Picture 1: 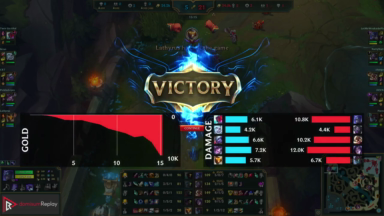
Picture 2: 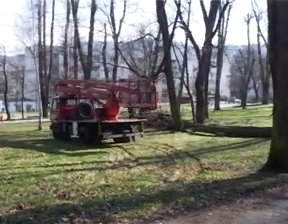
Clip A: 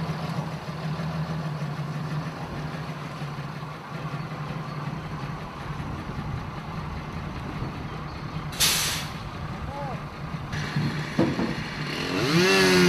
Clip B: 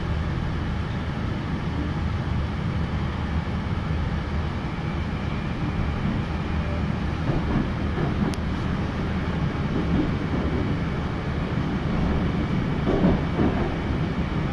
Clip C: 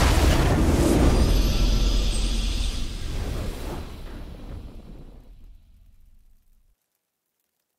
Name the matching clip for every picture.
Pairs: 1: C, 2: A